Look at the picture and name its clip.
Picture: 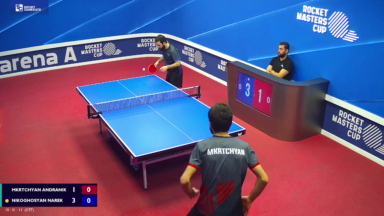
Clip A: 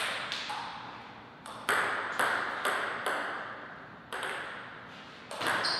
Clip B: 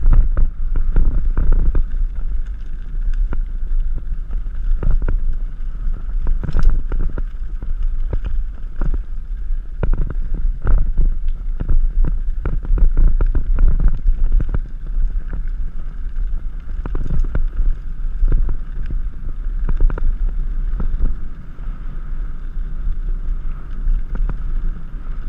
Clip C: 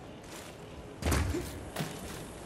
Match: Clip A